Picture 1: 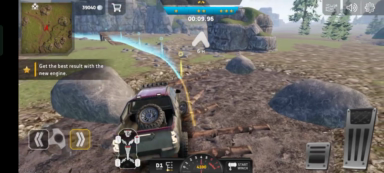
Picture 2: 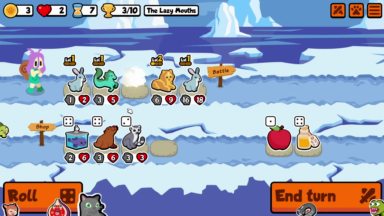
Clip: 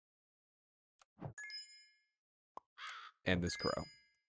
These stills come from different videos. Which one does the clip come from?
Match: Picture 2